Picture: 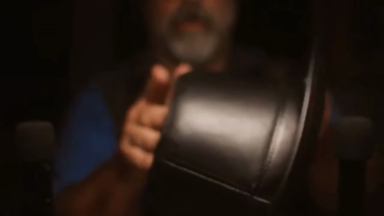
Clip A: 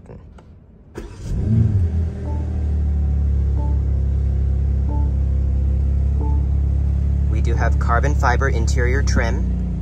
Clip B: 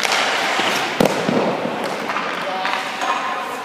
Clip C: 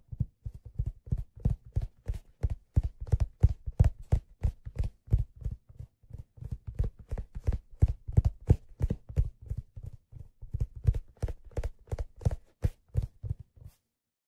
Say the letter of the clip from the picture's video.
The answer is C